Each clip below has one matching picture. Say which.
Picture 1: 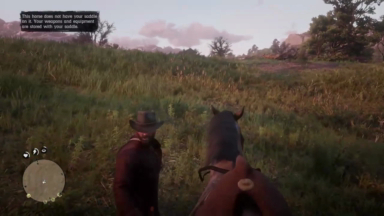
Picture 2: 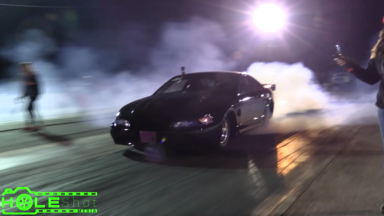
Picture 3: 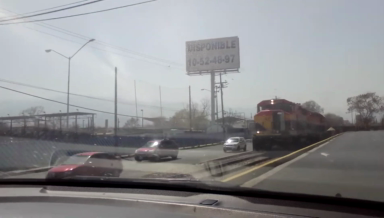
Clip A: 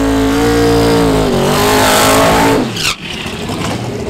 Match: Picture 2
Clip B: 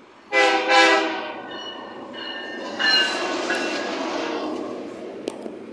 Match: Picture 3